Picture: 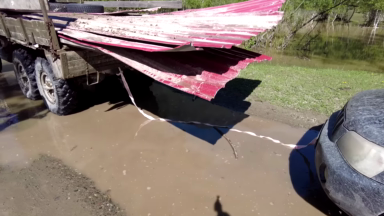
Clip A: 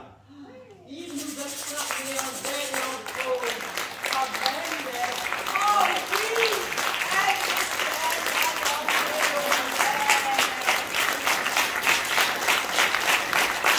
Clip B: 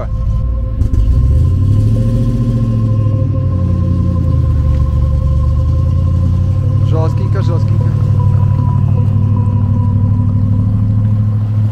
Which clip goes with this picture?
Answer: B